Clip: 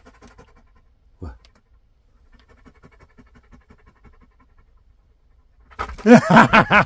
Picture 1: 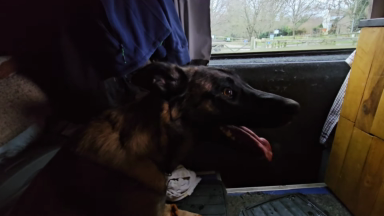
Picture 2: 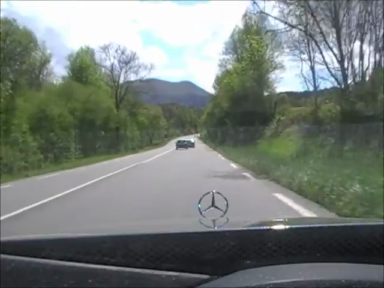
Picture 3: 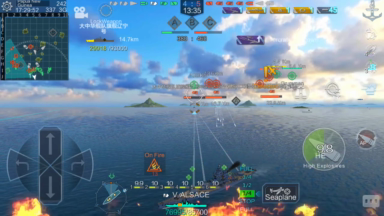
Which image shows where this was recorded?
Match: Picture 1